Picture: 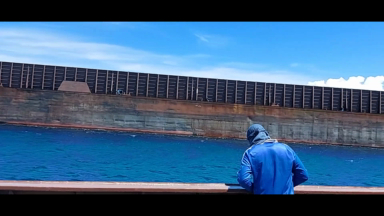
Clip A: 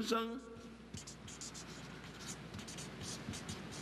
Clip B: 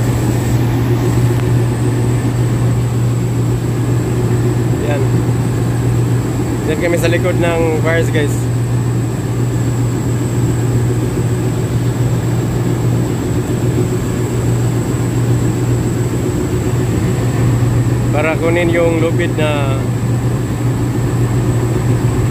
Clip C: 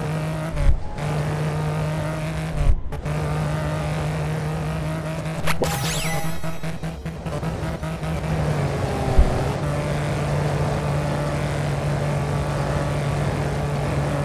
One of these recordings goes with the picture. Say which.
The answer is B